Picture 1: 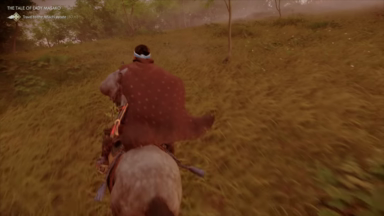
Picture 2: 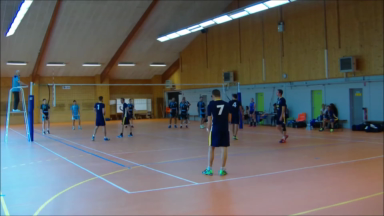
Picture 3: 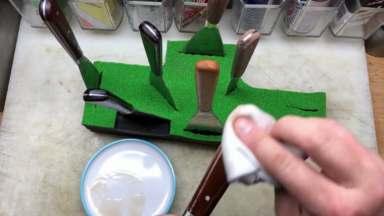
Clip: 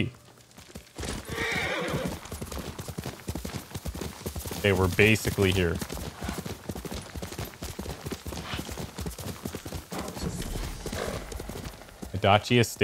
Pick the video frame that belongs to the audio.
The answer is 1